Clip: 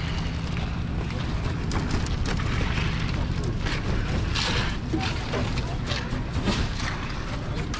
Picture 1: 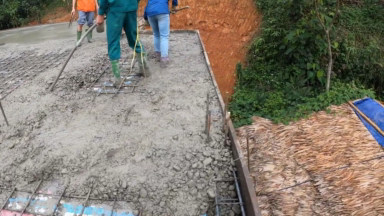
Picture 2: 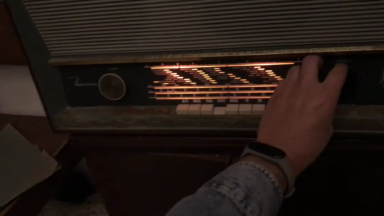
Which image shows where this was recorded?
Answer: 1